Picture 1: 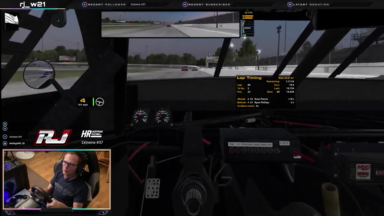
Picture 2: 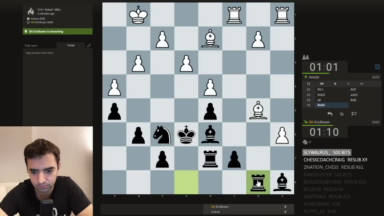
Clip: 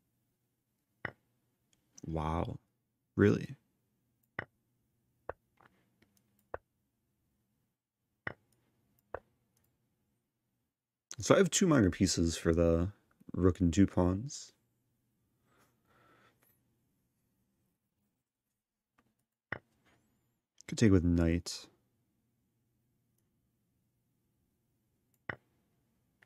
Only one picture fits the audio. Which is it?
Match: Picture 2